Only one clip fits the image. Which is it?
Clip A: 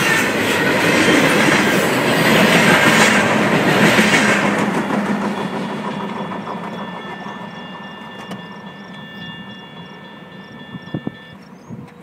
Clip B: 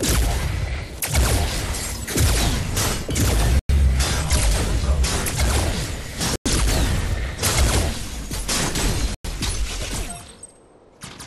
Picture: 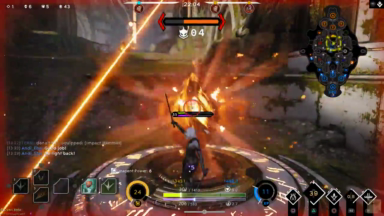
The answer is B